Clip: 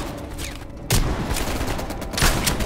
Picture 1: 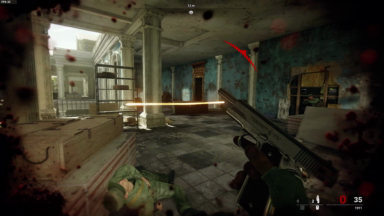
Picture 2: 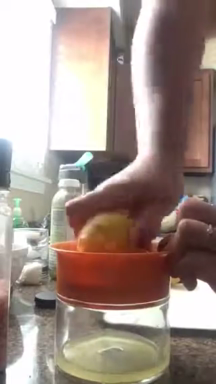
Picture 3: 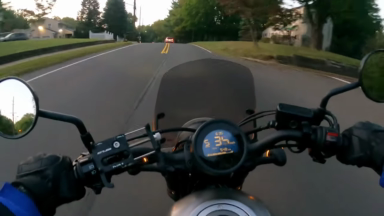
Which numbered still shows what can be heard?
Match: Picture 1